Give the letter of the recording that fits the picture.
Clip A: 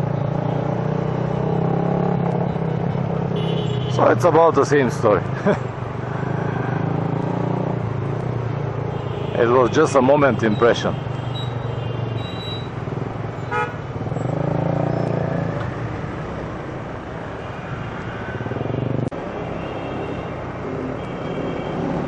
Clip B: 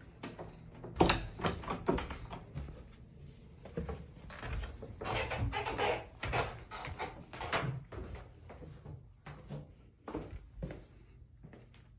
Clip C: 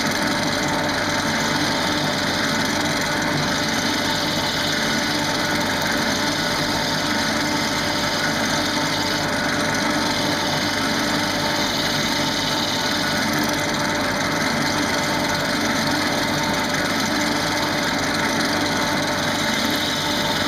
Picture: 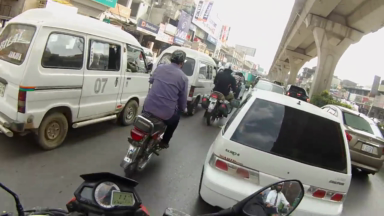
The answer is A